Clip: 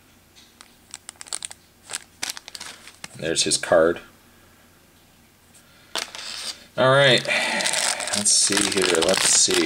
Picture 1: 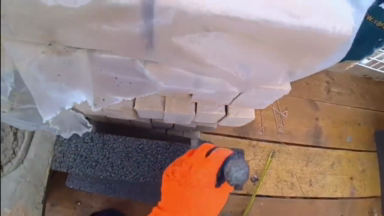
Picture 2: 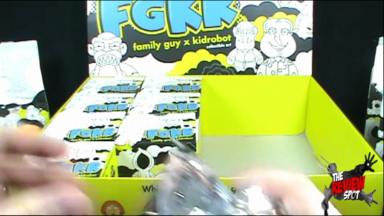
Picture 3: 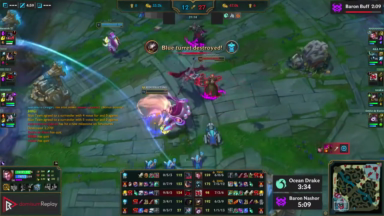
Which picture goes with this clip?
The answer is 2